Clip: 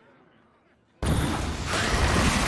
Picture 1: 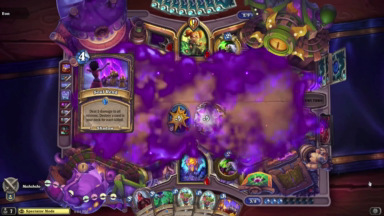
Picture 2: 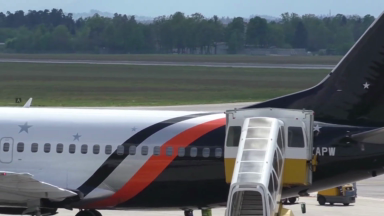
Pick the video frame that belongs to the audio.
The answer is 1